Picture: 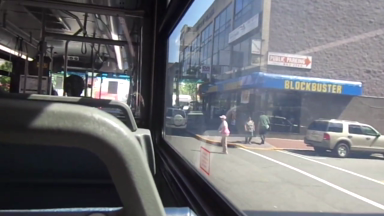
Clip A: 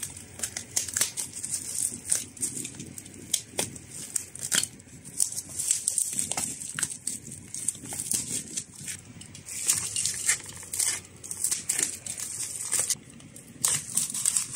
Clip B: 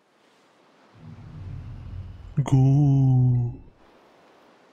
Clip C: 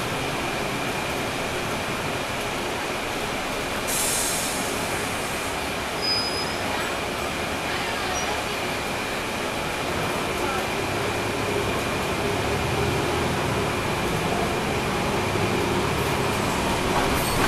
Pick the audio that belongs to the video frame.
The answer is C